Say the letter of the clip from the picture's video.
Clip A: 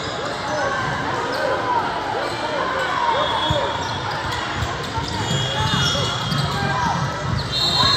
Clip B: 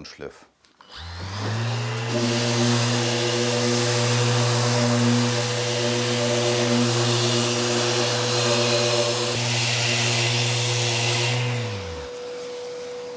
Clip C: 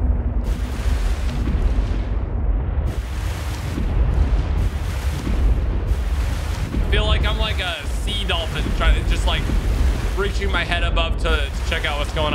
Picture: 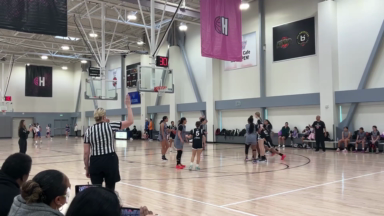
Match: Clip A